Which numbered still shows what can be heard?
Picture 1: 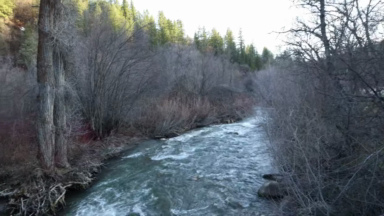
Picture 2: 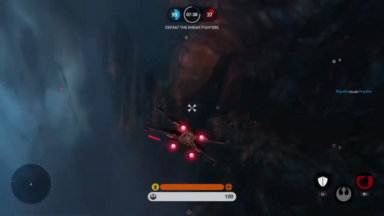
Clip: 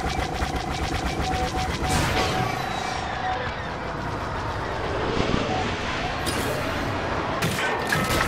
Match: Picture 2